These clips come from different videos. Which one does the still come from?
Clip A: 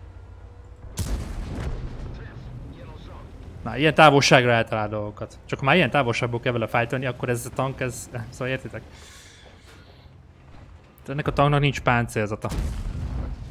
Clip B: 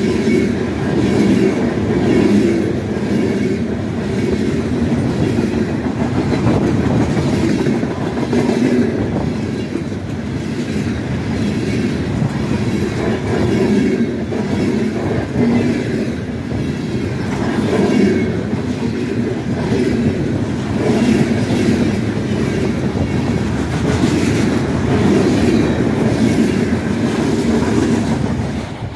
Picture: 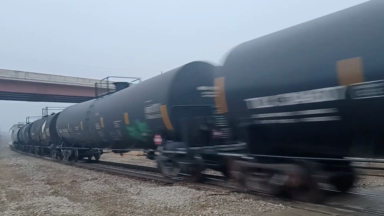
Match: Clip B